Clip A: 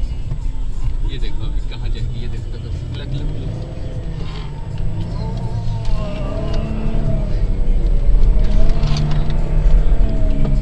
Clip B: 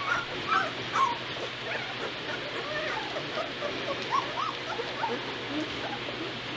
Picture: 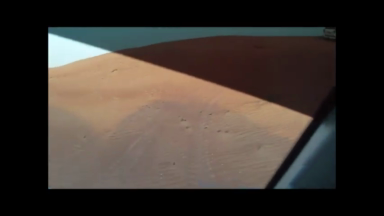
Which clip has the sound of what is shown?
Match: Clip A